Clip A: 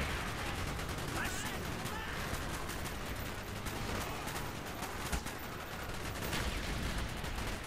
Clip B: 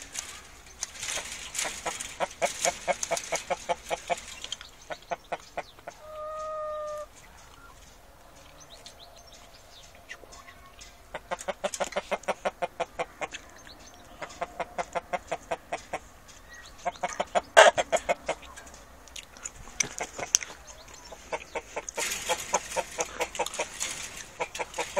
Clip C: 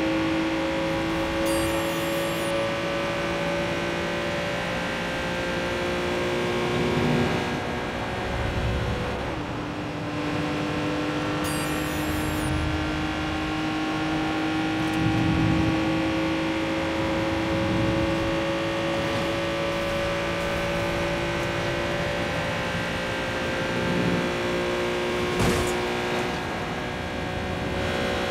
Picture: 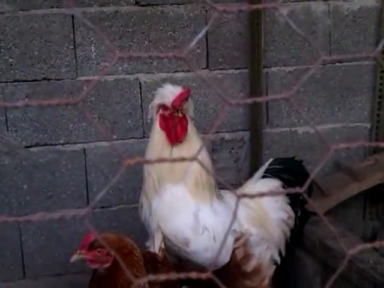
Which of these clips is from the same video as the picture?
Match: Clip B